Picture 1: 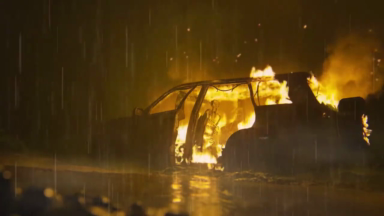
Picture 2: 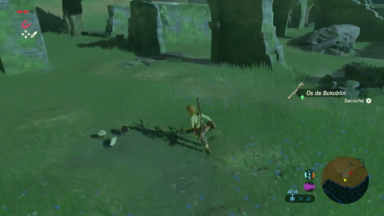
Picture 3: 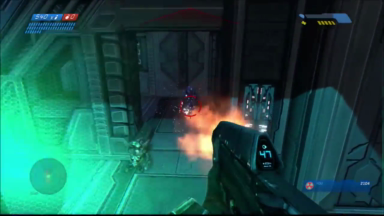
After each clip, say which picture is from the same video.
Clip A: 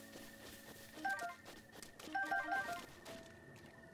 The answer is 2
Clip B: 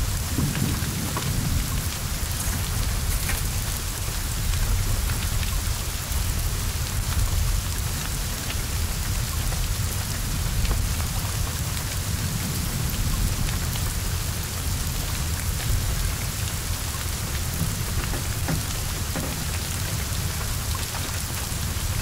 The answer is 1